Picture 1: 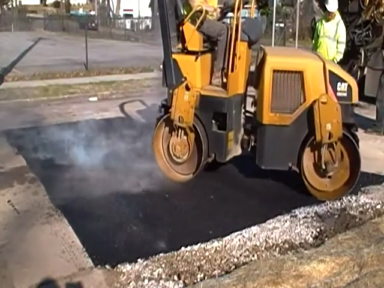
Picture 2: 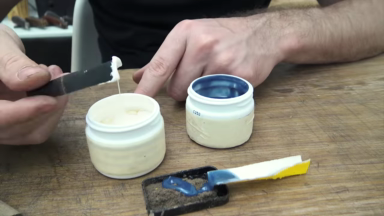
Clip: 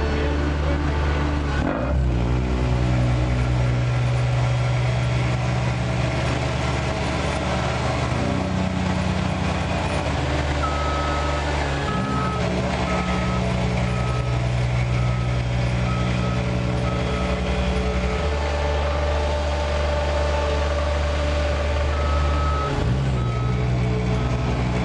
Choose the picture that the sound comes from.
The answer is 1